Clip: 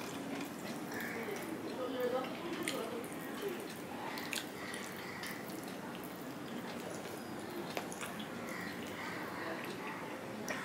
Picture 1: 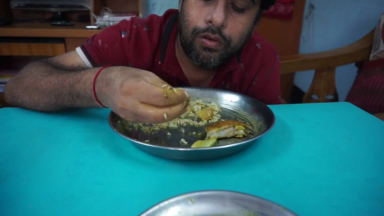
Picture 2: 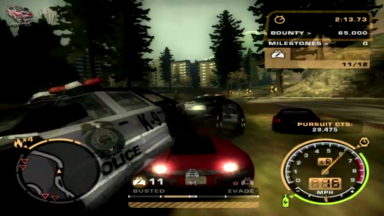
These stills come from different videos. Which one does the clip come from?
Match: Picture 1